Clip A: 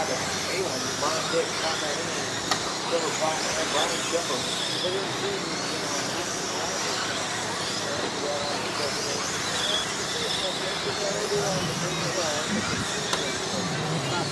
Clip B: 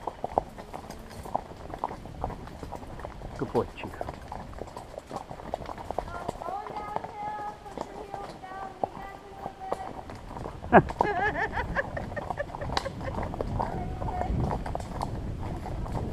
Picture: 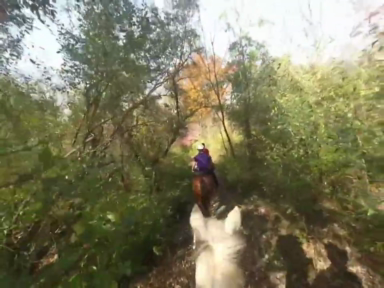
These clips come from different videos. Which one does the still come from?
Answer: B